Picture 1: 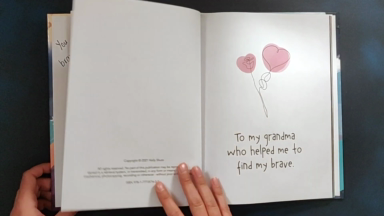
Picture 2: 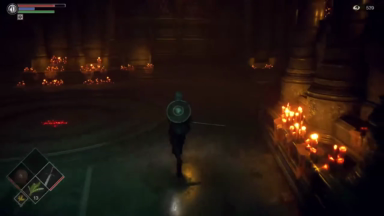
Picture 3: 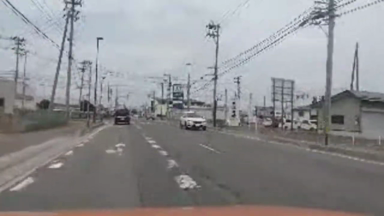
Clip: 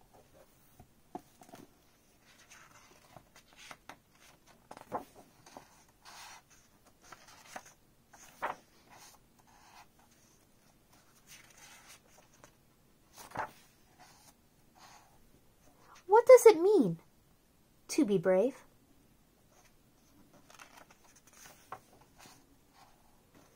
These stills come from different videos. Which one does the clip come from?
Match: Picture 1